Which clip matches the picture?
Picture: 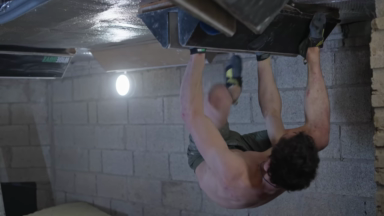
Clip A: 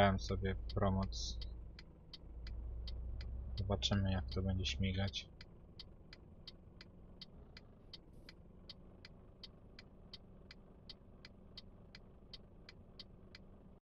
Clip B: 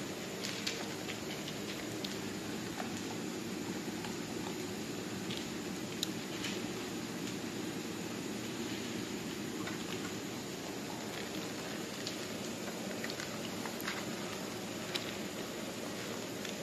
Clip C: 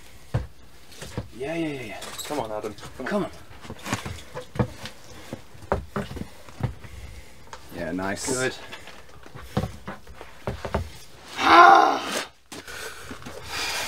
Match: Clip C